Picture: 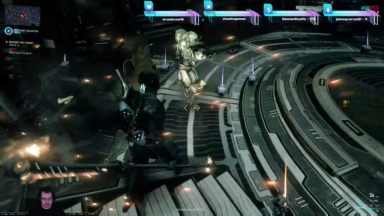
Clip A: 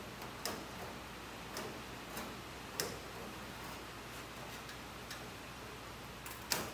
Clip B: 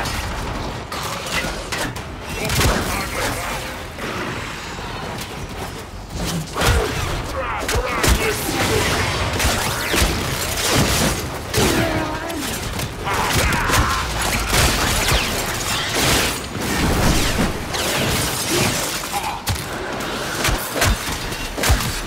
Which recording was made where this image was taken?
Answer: B